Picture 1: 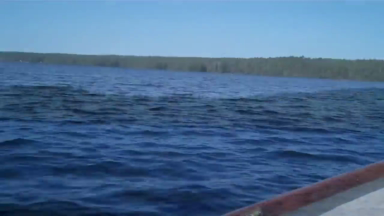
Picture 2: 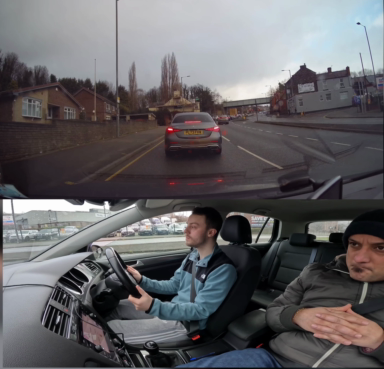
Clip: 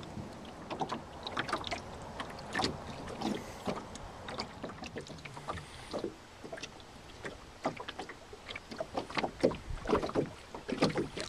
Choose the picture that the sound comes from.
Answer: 1